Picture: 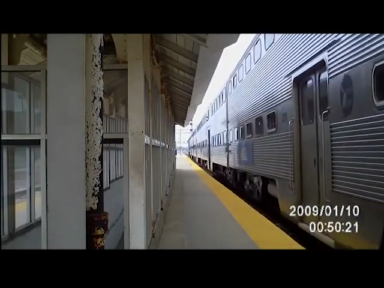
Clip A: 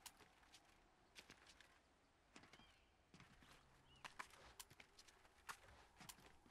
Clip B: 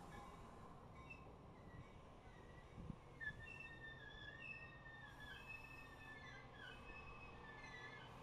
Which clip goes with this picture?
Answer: B